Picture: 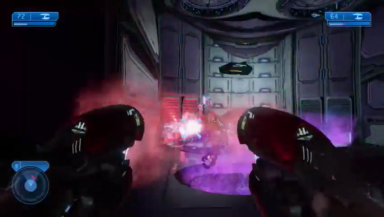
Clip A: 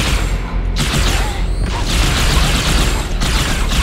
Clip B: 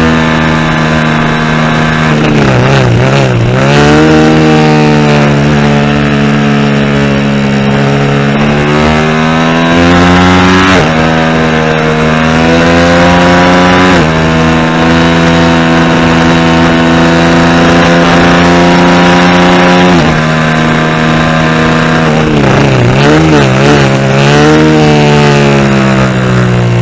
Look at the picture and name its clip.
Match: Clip A